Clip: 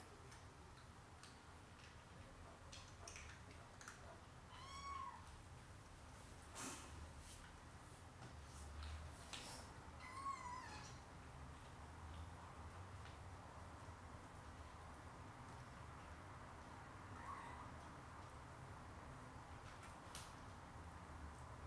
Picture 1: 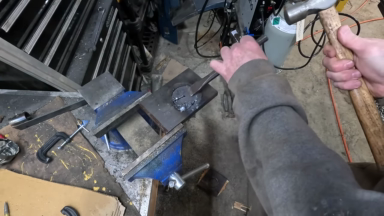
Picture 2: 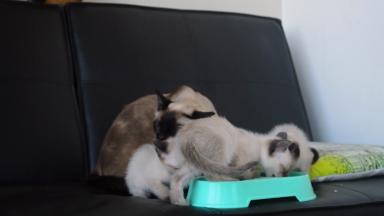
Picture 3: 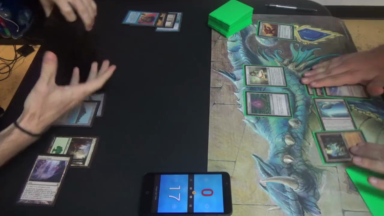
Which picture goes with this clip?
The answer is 2